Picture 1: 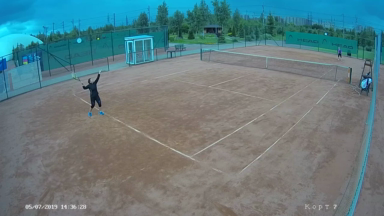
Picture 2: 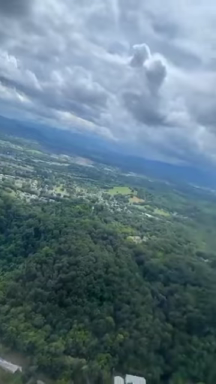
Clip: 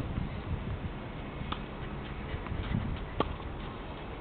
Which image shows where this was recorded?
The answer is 1